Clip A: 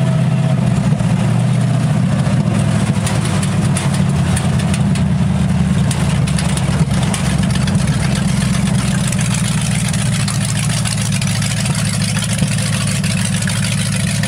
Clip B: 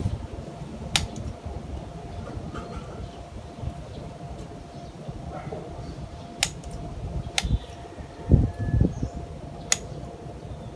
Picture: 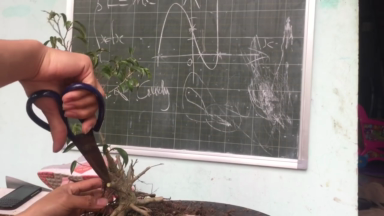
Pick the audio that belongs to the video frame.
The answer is B